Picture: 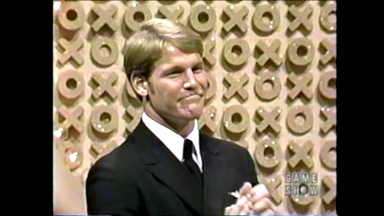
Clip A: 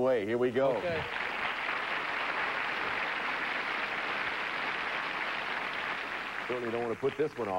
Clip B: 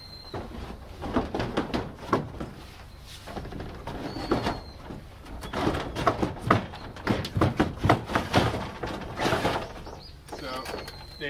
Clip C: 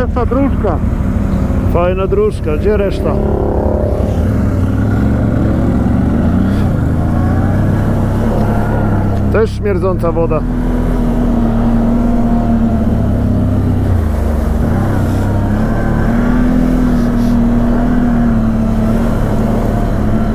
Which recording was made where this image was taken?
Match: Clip A